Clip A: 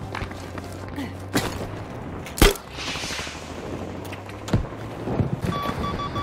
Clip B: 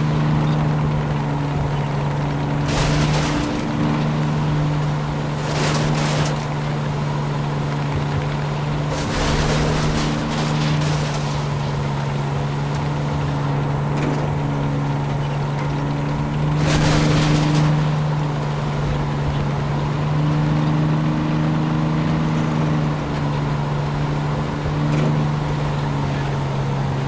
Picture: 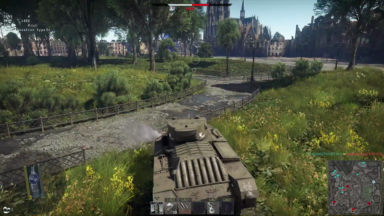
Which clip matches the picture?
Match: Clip B